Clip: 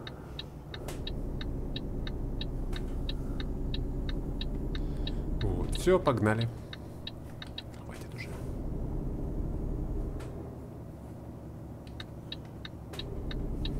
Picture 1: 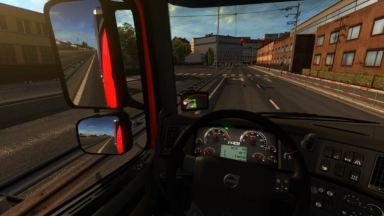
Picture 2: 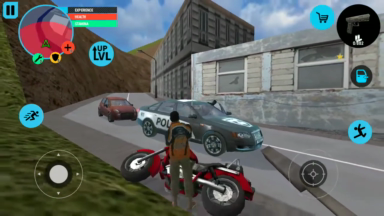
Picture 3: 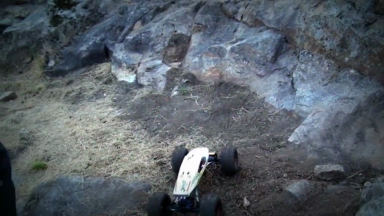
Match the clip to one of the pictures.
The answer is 1